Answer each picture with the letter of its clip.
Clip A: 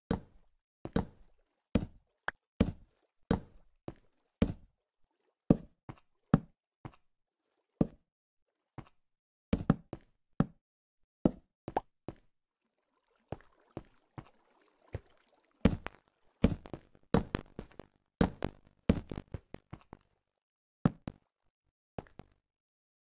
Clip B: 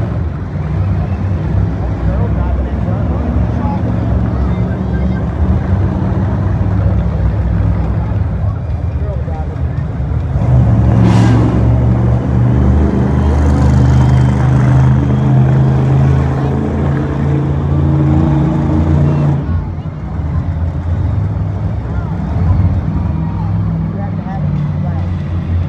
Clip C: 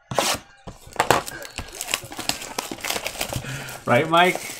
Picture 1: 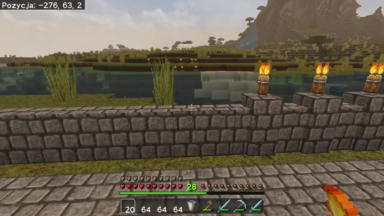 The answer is A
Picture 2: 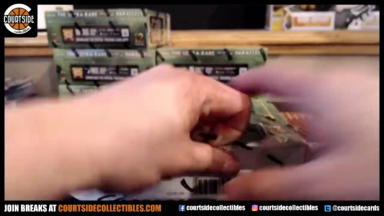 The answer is C